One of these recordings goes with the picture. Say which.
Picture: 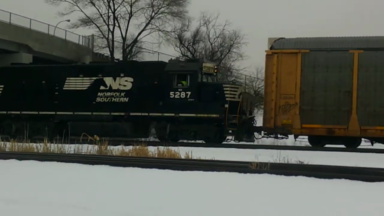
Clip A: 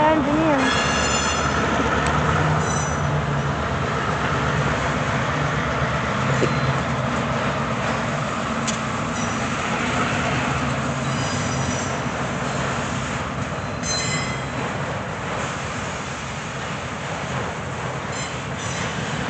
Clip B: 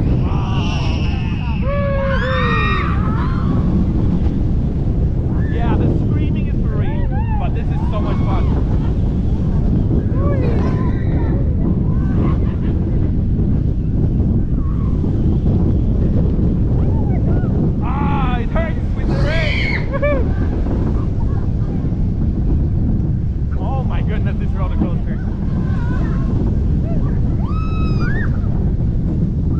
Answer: A